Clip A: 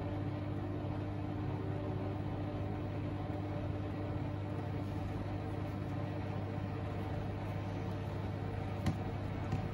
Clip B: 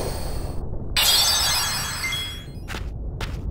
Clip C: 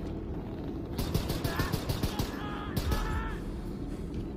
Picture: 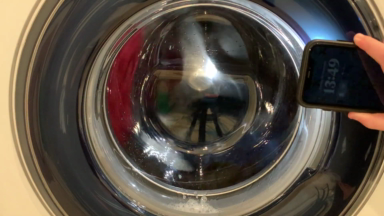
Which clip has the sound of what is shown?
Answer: A